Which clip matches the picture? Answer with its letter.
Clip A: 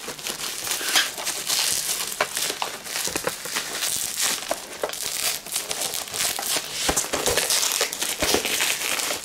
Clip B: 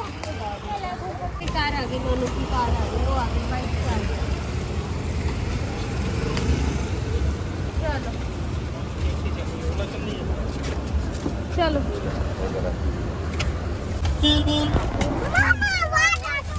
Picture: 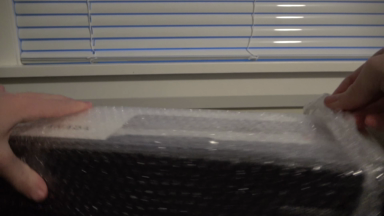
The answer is A